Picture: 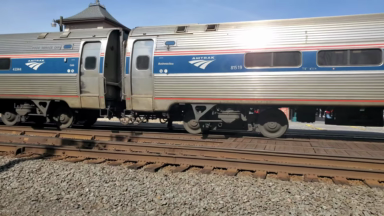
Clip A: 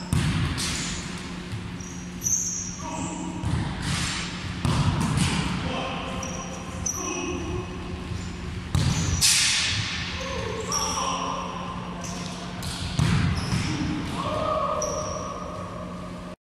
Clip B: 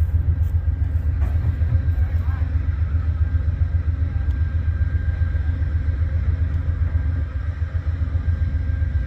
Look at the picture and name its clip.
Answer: B